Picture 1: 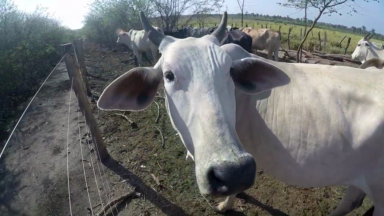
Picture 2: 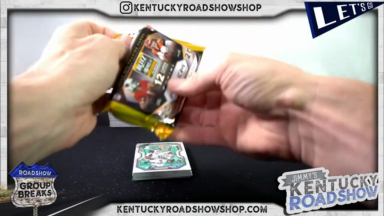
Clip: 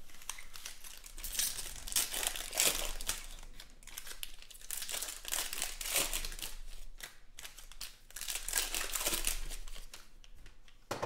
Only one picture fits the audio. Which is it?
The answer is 2